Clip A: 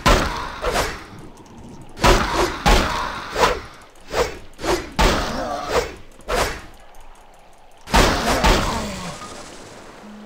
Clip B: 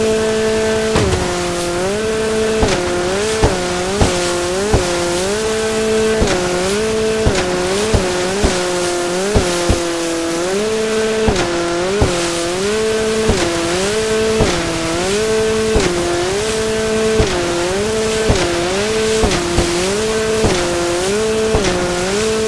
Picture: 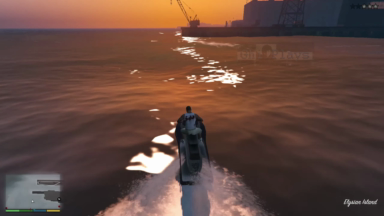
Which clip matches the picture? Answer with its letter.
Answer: B